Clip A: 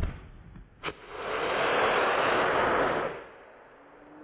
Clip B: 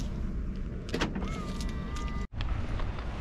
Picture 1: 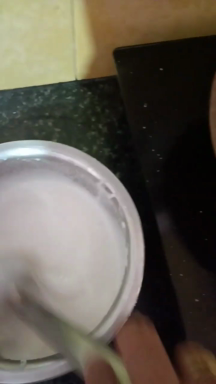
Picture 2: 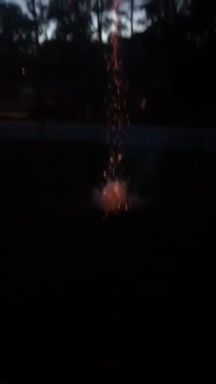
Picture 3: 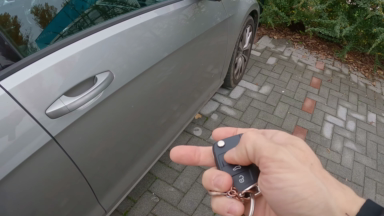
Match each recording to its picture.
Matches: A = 2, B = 3